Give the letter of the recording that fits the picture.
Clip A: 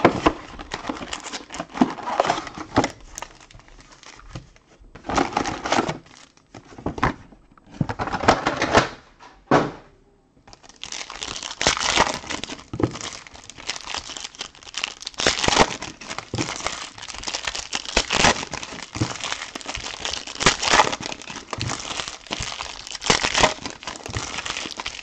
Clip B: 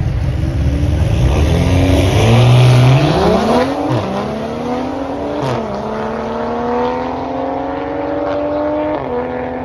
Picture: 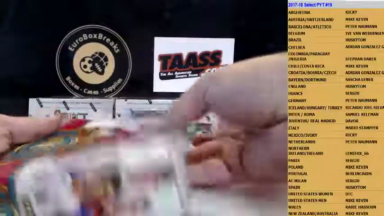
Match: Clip A